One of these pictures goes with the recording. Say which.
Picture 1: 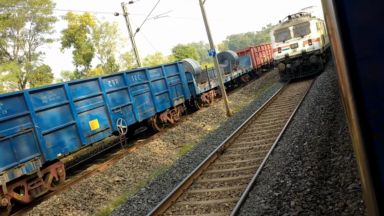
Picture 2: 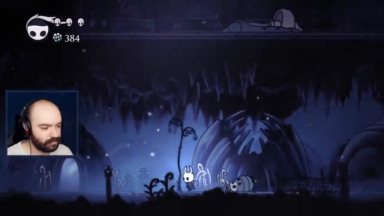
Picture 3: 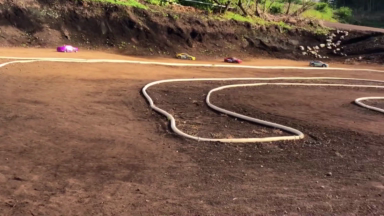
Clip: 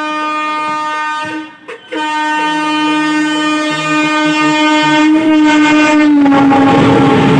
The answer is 1